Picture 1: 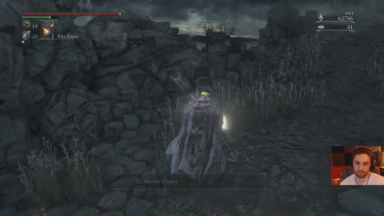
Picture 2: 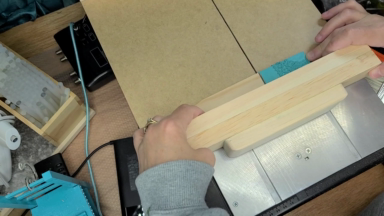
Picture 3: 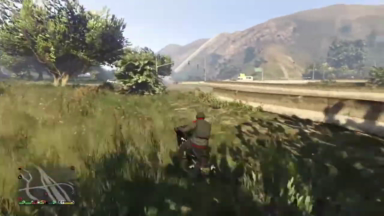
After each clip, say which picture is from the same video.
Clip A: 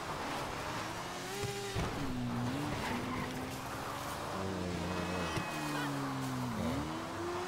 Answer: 3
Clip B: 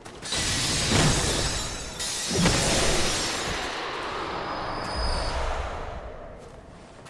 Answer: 1